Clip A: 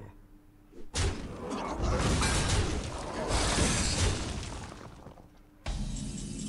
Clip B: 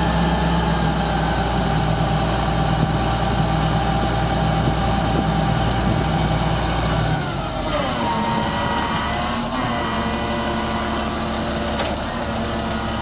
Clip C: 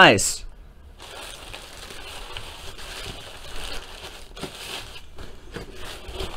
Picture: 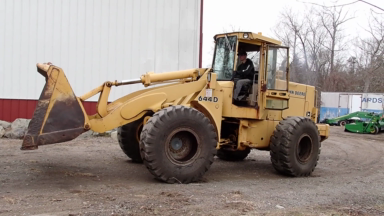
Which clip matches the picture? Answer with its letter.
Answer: B